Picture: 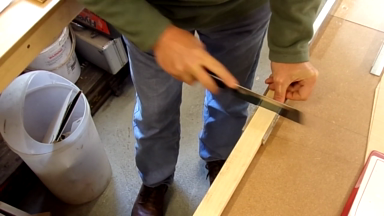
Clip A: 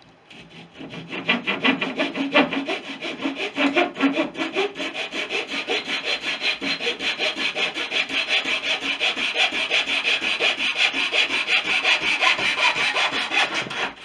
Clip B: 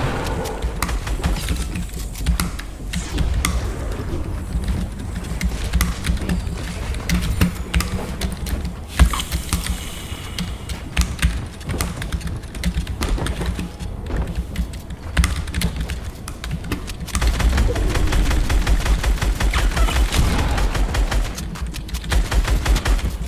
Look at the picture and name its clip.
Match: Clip A